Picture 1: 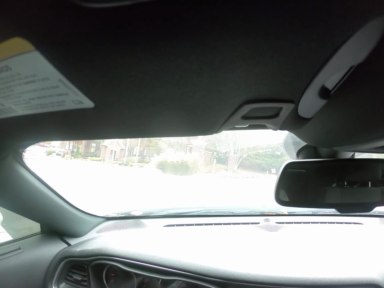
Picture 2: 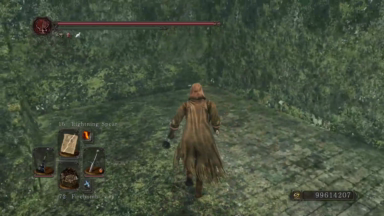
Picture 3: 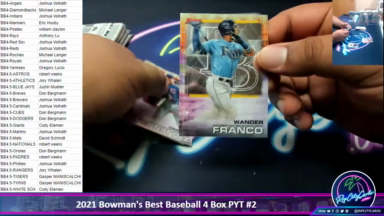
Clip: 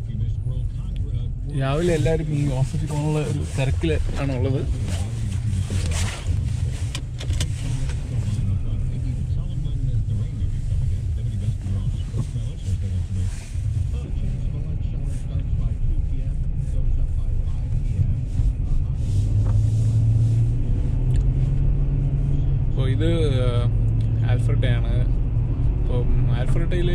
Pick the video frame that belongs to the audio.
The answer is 1